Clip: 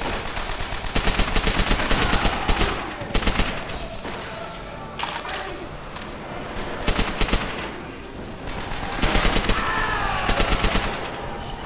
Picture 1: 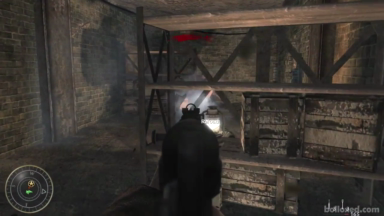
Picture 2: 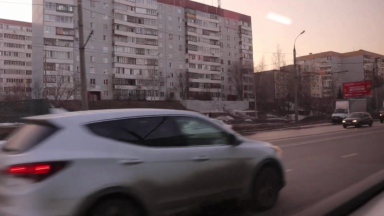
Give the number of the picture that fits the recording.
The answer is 1